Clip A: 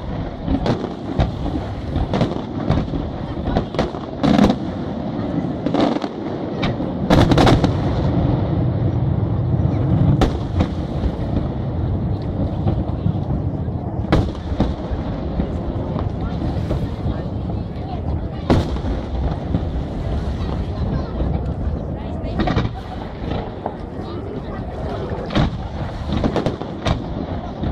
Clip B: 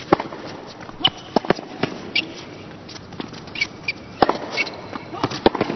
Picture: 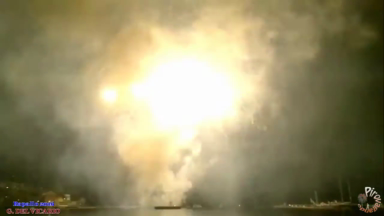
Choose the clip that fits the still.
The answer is A